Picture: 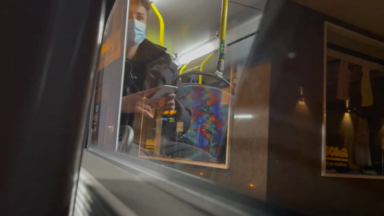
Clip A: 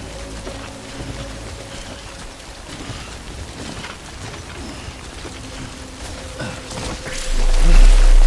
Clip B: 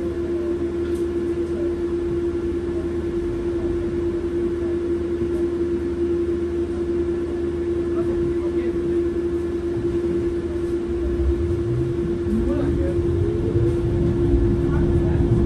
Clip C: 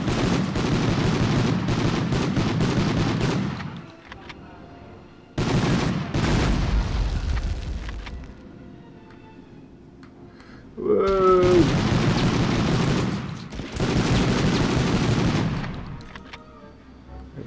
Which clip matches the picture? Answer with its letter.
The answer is B